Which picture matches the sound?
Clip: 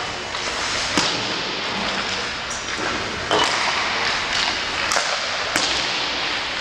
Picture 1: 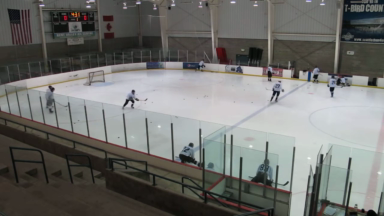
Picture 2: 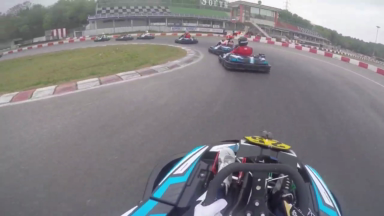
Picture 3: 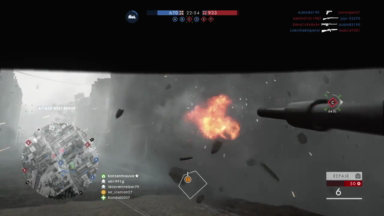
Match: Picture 1